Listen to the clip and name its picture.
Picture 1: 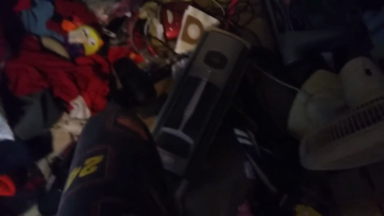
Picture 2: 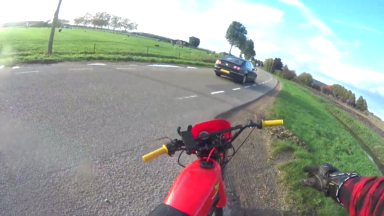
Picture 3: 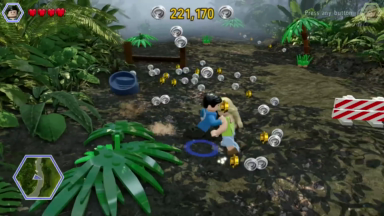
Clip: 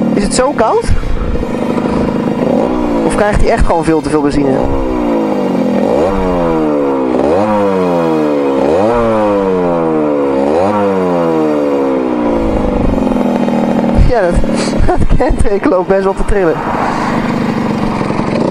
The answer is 2